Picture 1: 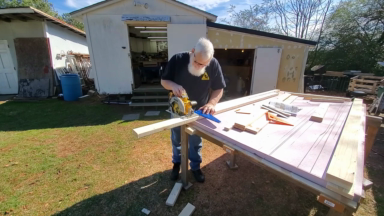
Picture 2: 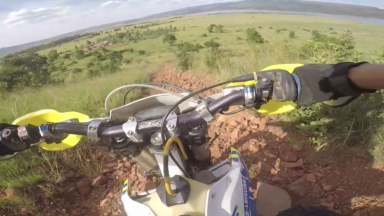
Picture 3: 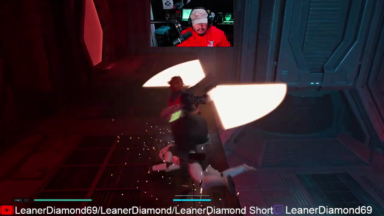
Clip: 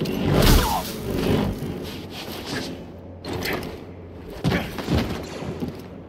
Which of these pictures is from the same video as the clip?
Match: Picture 3